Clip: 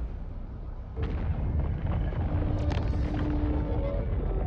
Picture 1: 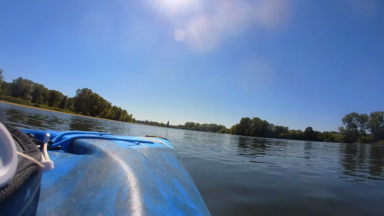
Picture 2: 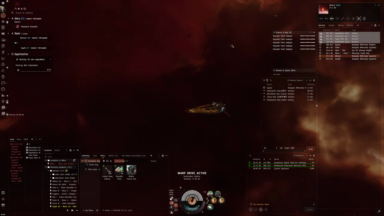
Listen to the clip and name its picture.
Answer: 2